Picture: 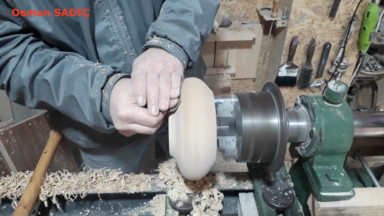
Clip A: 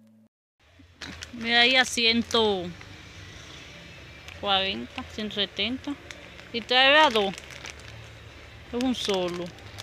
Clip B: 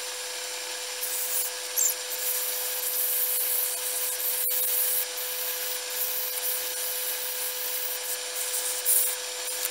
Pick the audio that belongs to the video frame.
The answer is B